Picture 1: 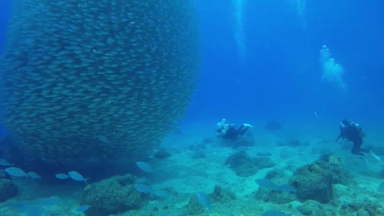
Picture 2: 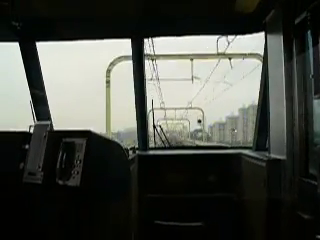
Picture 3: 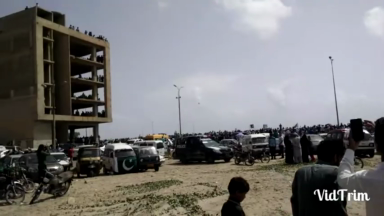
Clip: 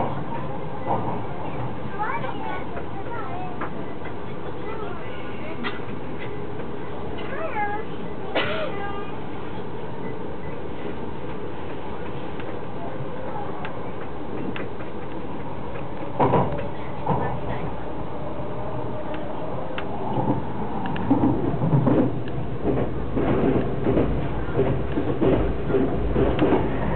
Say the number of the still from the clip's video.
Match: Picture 2